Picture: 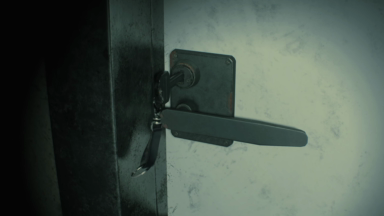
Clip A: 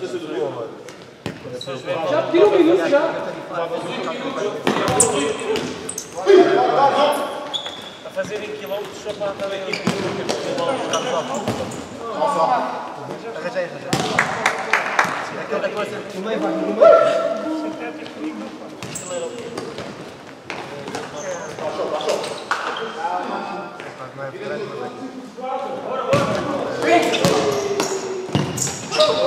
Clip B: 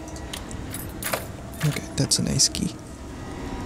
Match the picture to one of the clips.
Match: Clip B